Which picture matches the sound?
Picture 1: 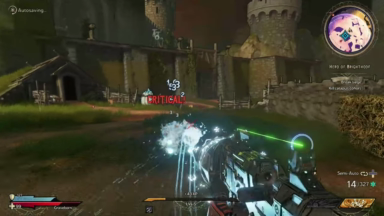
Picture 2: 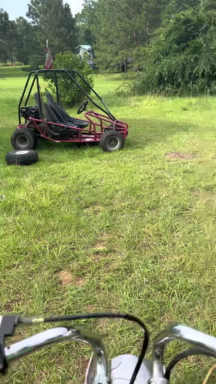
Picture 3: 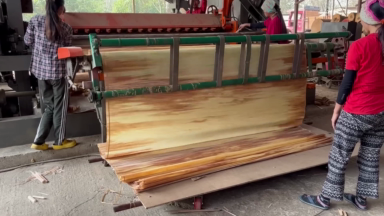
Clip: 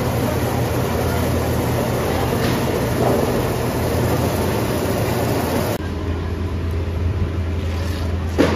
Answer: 3